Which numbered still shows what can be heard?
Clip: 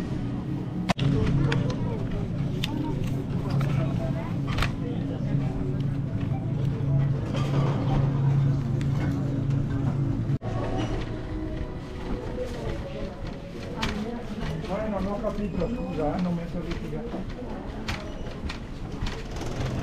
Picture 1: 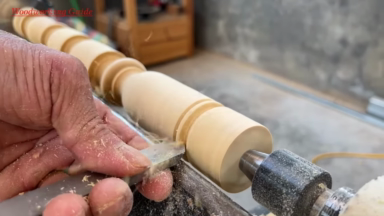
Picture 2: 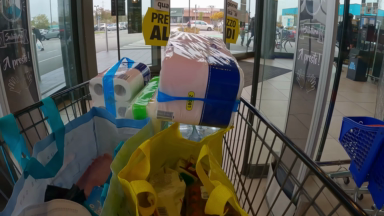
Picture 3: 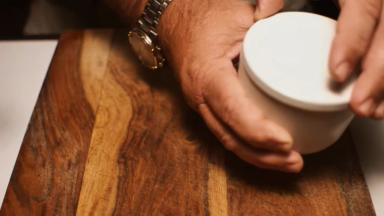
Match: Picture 2